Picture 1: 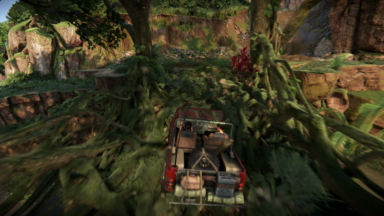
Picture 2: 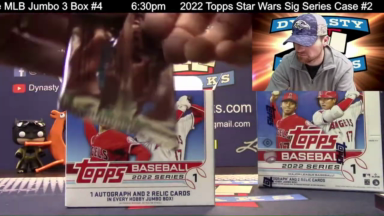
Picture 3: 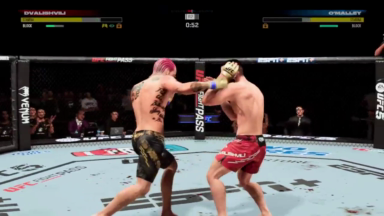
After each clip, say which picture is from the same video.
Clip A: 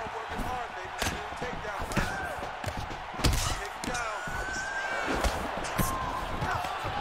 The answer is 3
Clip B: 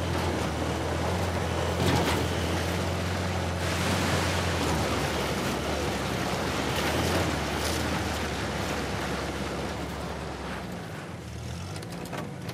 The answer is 1